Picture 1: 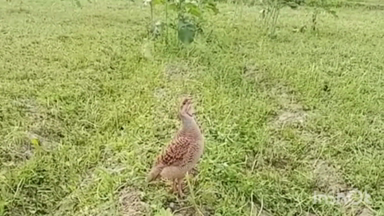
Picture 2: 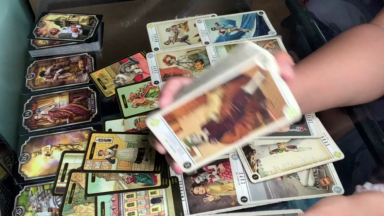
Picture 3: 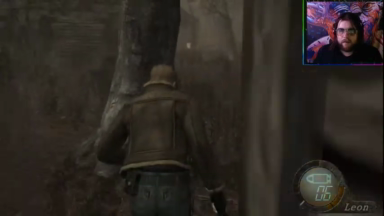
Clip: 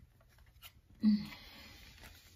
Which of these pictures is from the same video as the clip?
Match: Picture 2